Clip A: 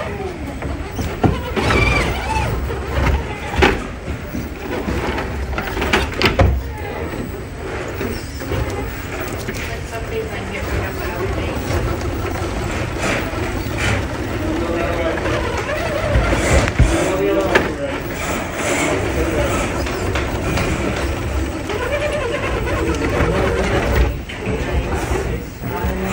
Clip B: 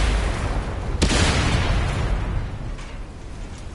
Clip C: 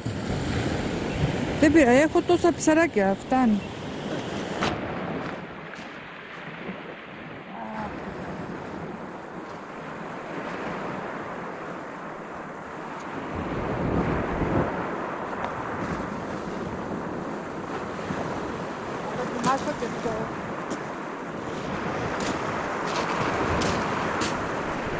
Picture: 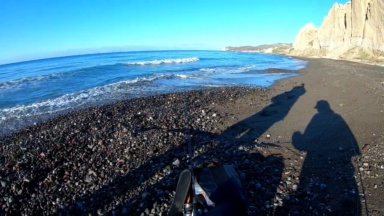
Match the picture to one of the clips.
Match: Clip C